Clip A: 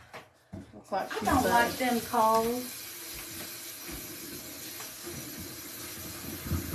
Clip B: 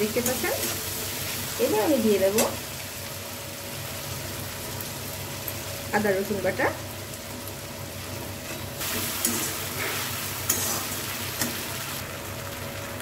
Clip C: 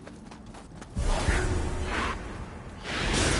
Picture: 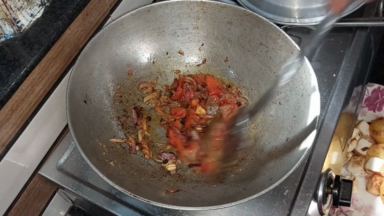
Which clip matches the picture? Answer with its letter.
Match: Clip B